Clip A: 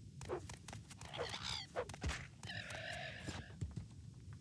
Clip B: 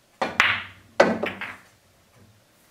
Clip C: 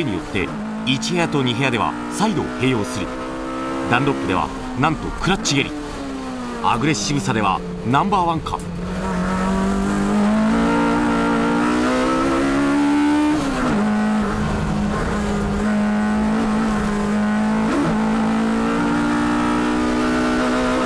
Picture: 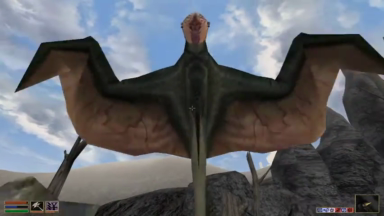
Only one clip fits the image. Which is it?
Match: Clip A